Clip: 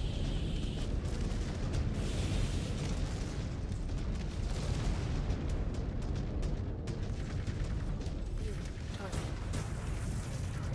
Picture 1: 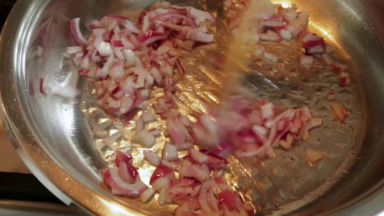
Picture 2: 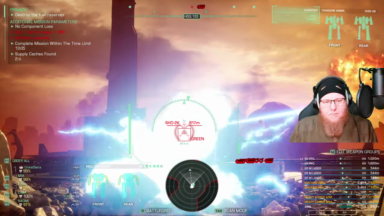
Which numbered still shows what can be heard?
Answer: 2